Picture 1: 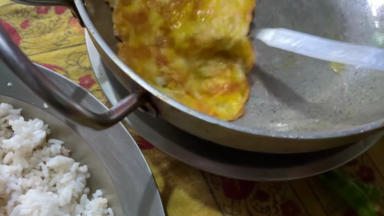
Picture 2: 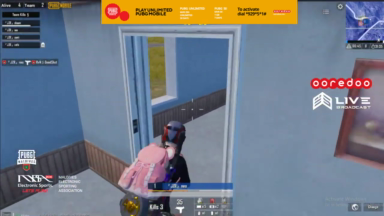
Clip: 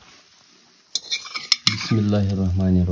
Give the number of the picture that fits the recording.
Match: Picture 1